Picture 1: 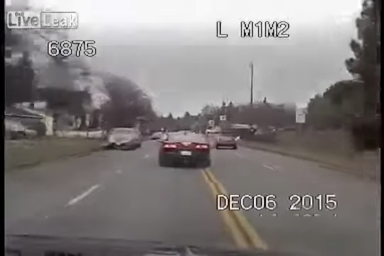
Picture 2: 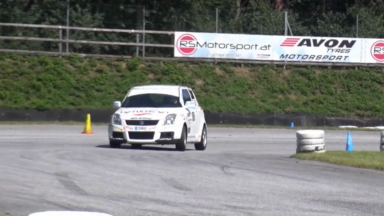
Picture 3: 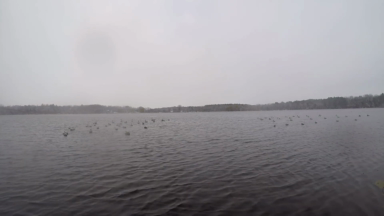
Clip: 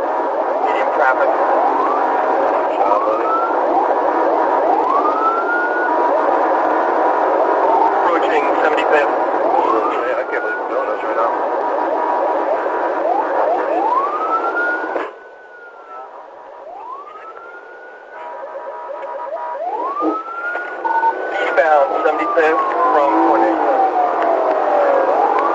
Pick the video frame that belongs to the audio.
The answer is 1